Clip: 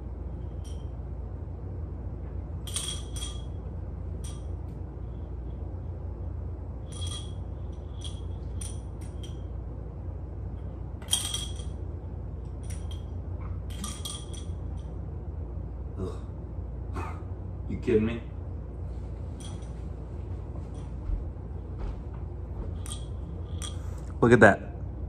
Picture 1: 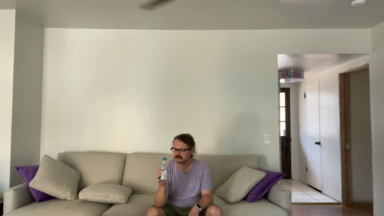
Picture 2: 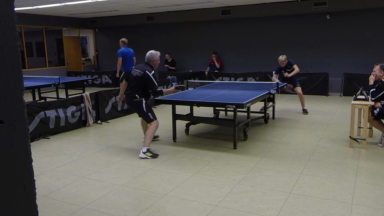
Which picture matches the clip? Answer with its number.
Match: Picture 1